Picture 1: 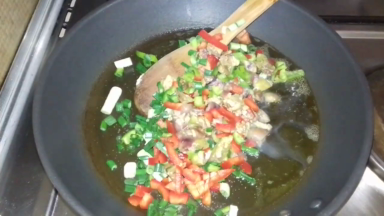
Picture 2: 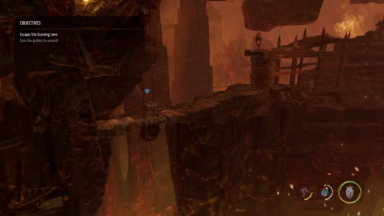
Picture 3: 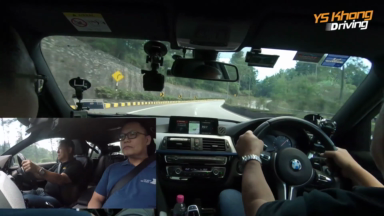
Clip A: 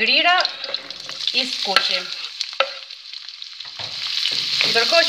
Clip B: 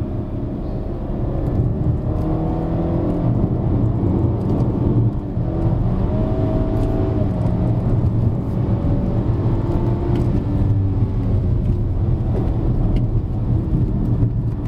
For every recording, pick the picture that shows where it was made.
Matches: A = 1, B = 3